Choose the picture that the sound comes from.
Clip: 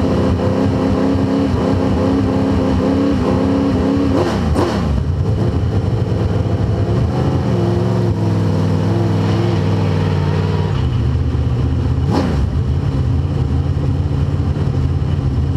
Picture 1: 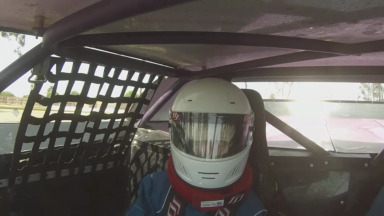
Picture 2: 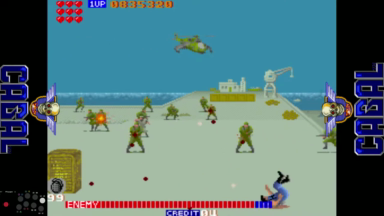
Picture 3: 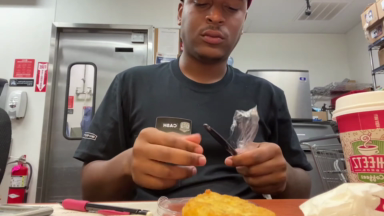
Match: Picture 1